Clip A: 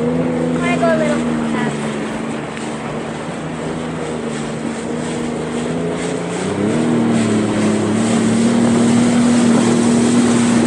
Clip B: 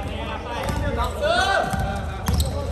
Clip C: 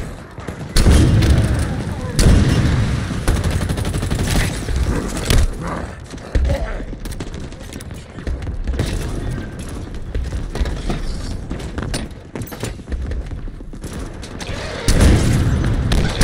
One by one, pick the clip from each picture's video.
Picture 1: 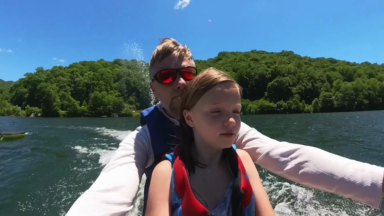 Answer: A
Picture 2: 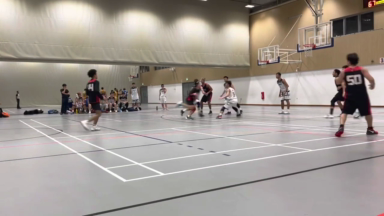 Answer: B